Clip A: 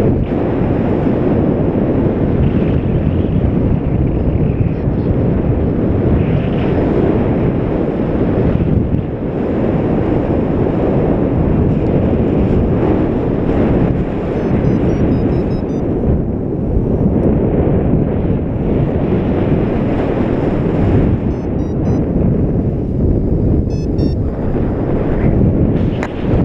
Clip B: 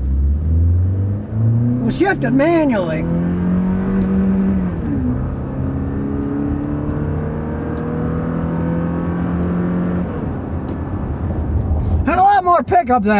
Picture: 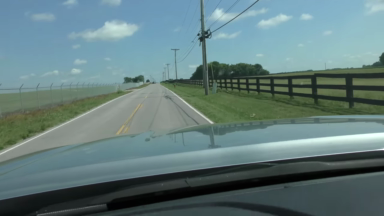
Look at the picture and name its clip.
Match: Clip B